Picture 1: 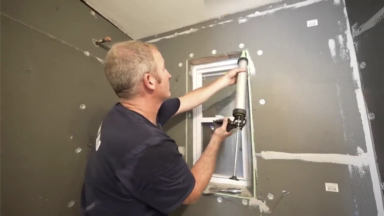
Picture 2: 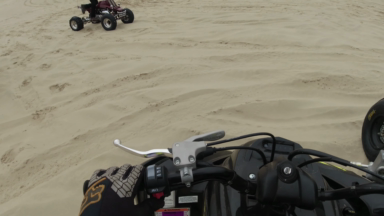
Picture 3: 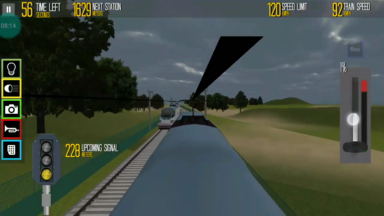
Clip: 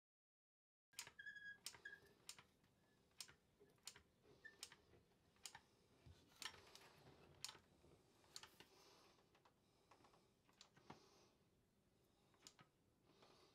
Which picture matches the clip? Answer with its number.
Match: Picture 1